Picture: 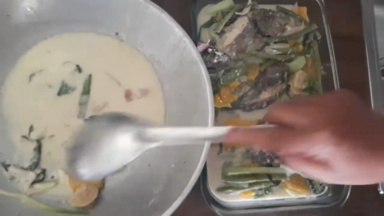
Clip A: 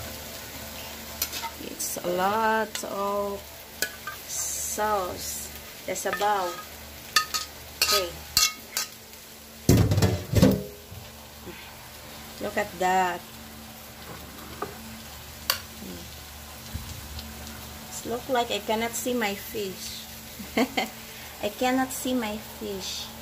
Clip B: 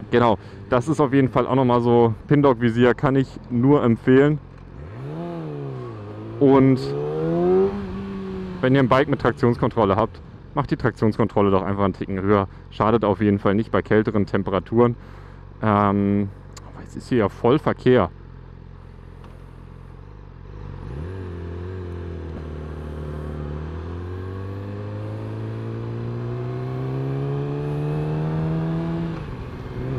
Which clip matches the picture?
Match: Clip A